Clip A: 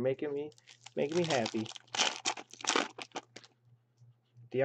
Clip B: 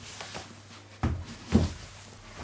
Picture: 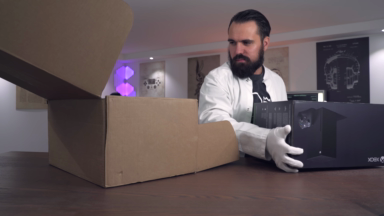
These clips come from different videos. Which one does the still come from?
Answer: B